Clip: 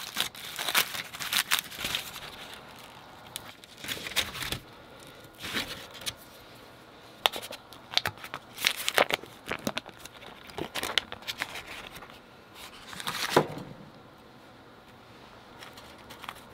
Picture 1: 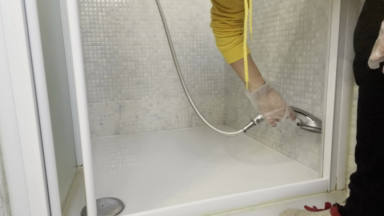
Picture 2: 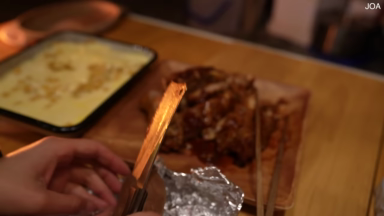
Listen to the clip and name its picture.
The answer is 2